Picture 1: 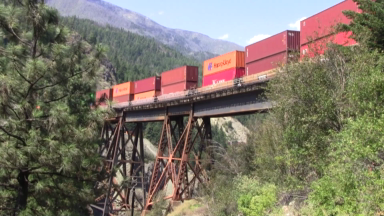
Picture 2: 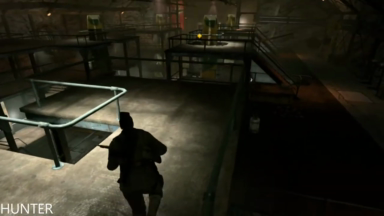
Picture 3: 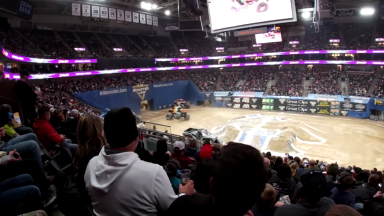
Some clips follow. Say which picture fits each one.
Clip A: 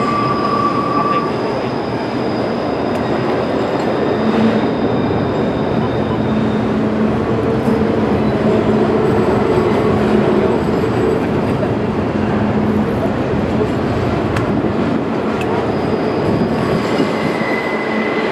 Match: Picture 1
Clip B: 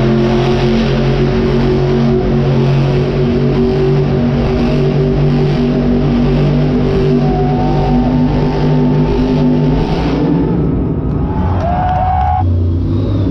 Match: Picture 3